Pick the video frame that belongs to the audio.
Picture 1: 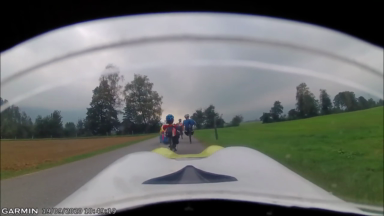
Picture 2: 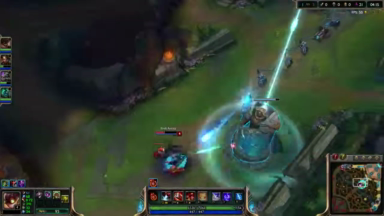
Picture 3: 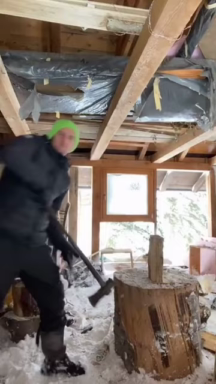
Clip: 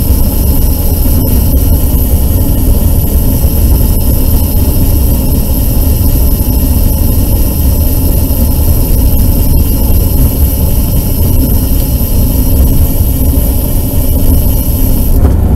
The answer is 1